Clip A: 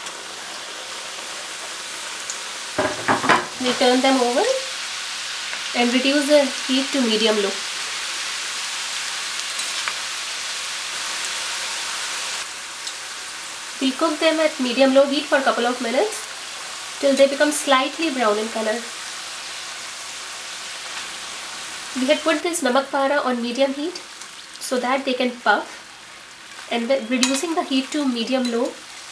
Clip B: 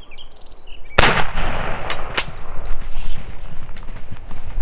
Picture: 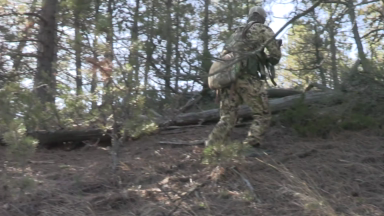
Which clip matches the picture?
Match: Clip B